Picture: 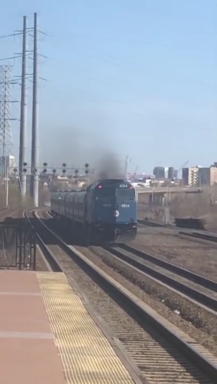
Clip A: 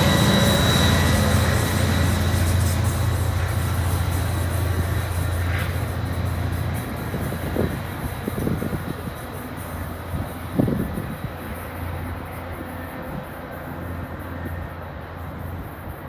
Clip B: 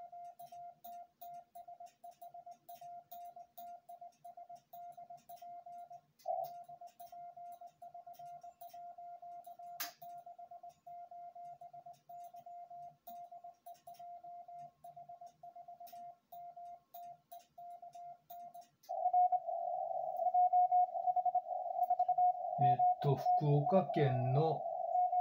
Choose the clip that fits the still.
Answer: A